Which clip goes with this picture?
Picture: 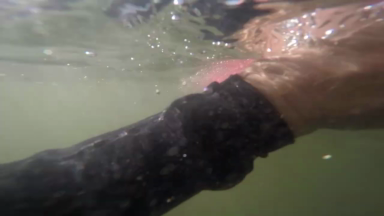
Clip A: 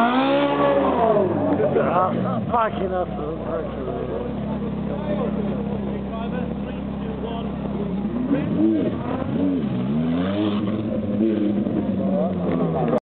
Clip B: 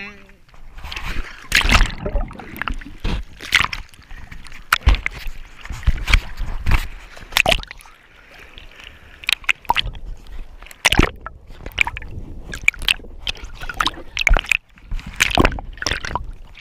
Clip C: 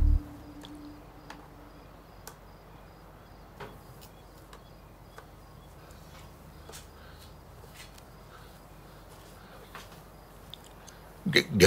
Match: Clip B